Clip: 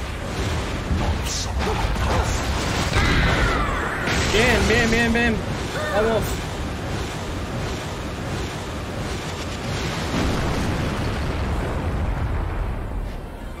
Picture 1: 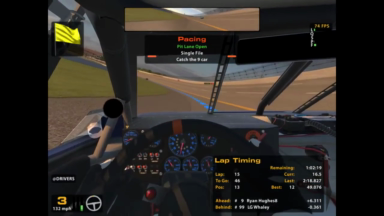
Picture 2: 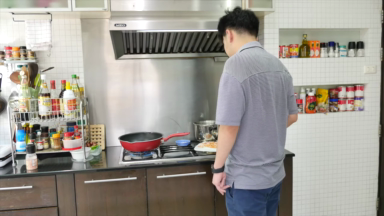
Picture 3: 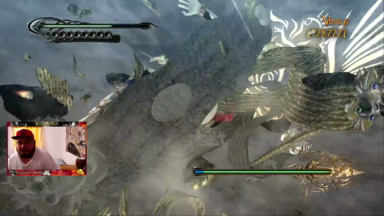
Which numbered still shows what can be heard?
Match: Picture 3